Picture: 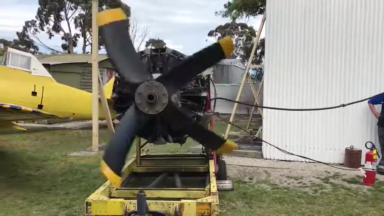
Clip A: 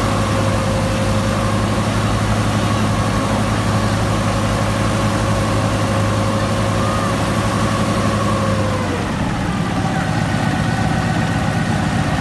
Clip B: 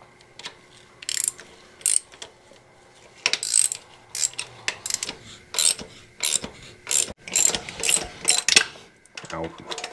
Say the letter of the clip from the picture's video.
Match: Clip A